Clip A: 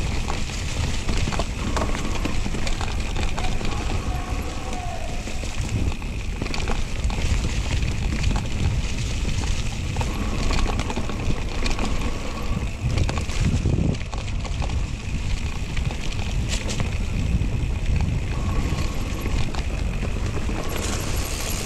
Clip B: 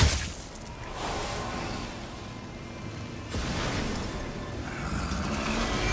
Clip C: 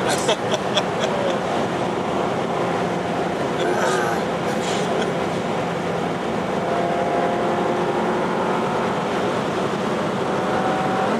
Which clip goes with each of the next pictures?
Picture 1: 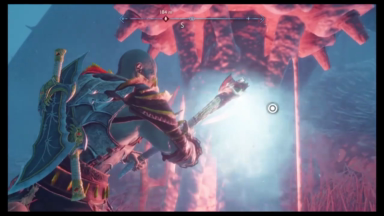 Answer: B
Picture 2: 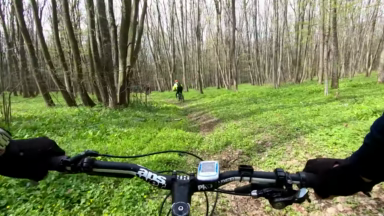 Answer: A